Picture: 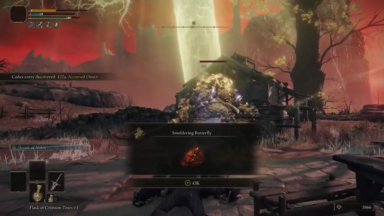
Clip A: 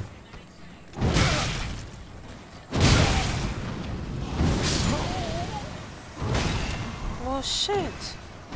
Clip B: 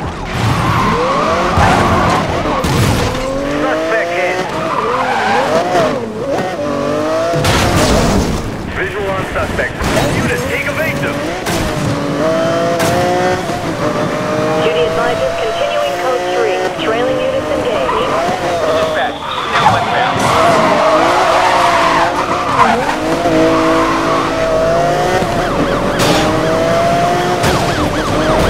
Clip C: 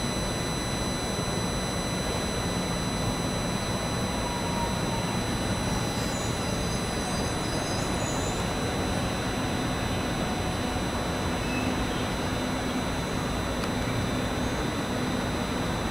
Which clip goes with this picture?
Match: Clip A